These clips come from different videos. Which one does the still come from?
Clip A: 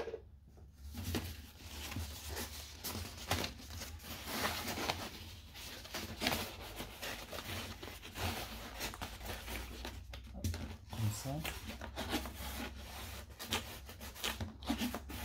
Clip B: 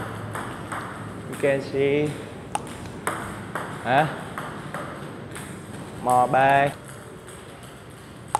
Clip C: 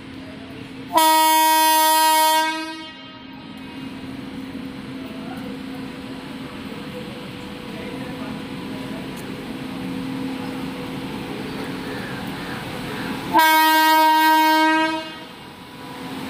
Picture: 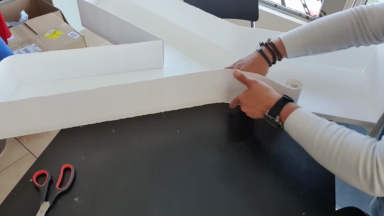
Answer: A